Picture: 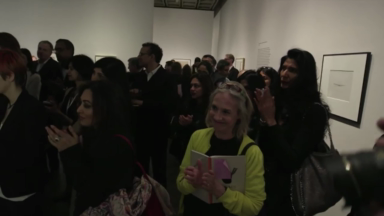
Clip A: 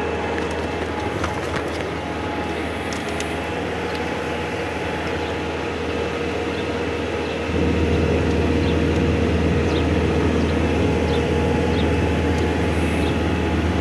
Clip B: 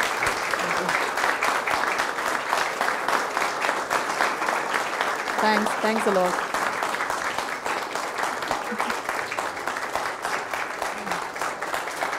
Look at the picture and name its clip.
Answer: B